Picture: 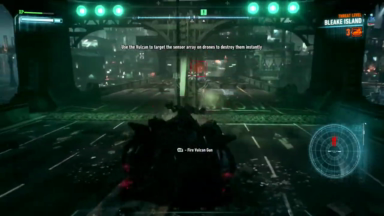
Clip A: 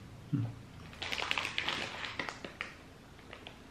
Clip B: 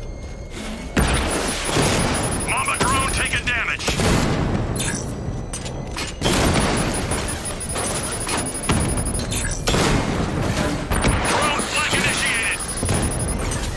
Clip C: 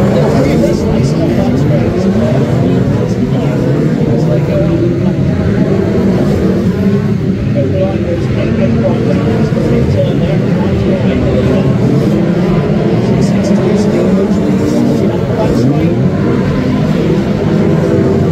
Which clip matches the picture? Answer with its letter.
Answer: B